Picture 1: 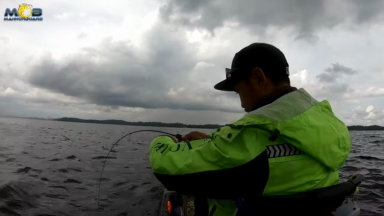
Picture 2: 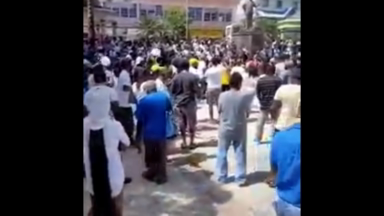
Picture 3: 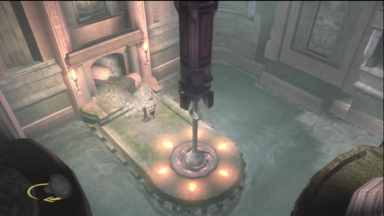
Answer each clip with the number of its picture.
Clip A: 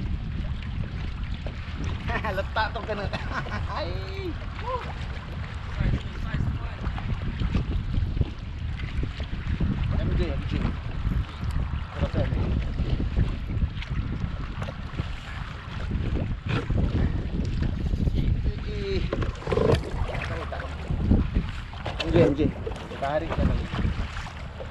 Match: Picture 1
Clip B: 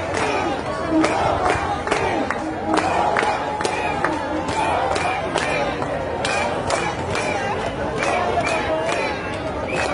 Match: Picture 2